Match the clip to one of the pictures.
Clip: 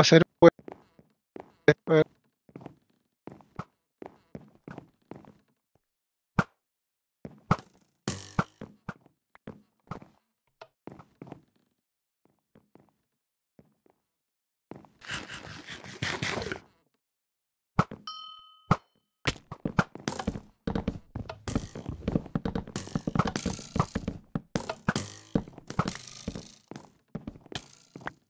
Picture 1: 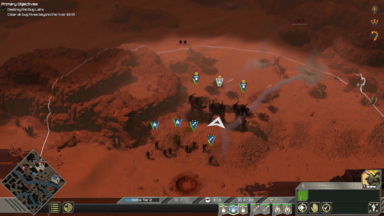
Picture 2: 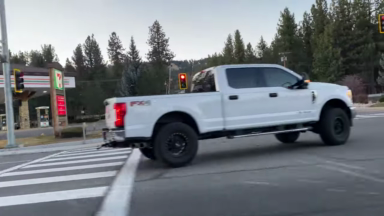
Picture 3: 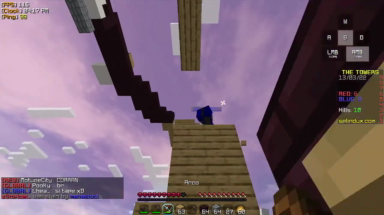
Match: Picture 3